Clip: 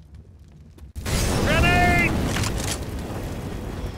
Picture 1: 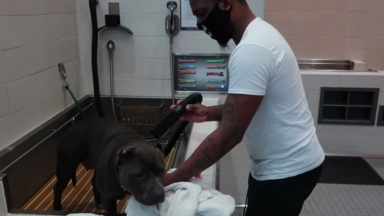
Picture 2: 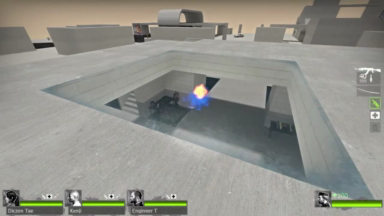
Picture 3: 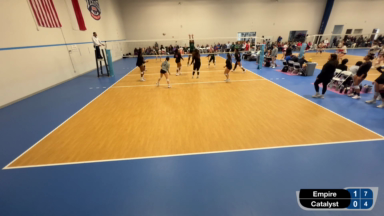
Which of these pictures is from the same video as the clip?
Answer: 2